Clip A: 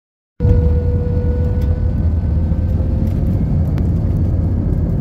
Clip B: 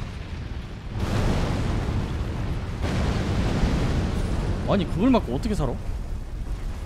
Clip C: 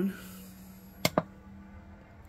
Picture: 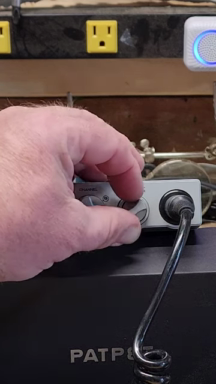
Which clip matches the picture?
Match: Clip C